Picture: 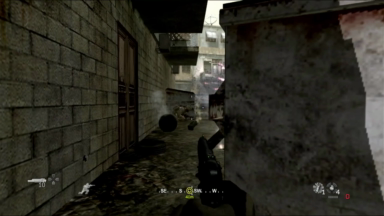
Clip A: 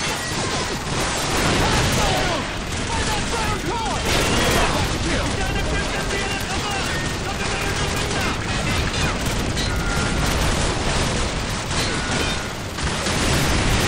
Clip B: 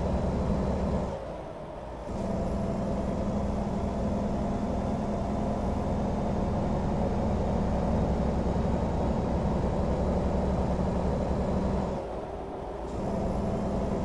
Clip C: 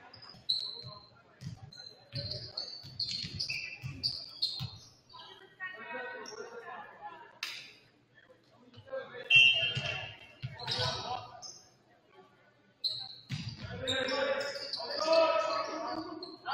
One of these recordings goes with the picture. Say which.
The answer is A